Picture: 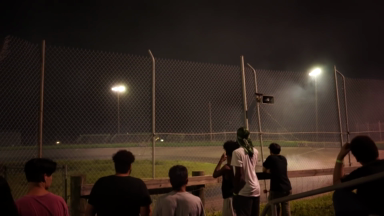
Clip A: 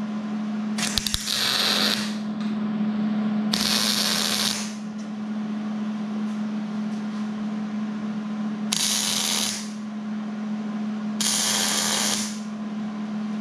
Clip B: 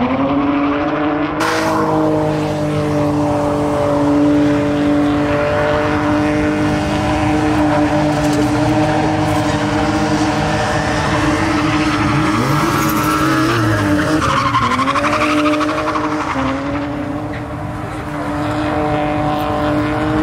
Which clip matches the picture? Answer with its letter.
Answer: B